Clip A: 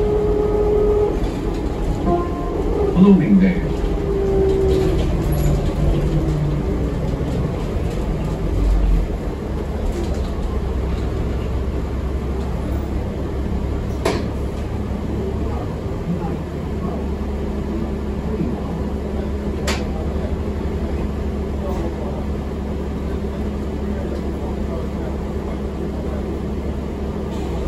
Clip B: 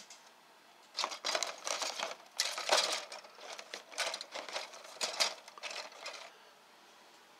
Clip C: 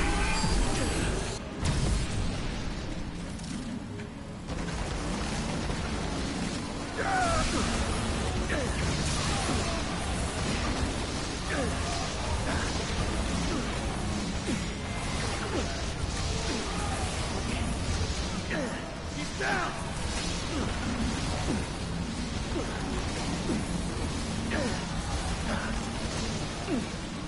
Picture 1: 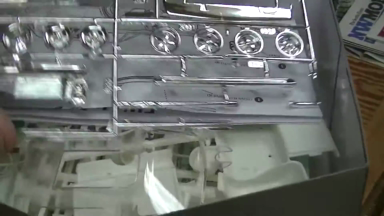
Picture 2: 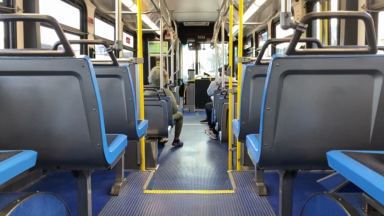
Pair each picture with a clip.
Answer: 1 B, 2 A